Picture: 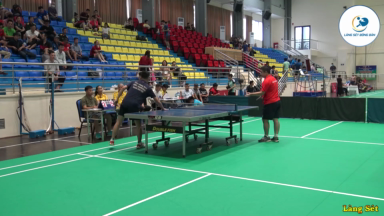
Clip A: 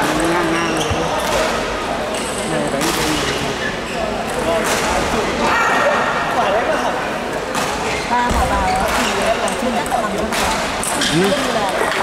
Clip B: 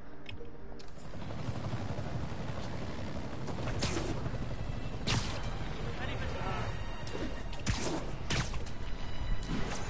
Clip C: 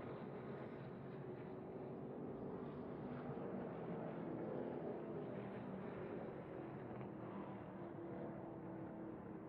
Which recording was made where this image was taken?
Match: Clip A